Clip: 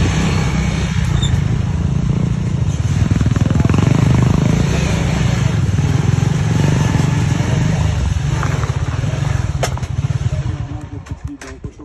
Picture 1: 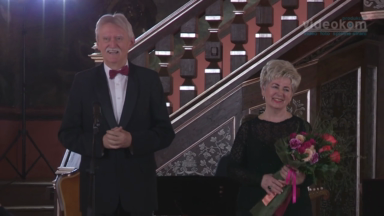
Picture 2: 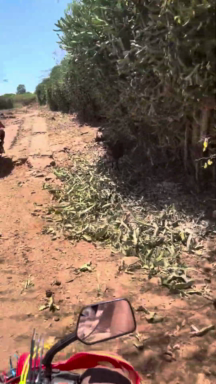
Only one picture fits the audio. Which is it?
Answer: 2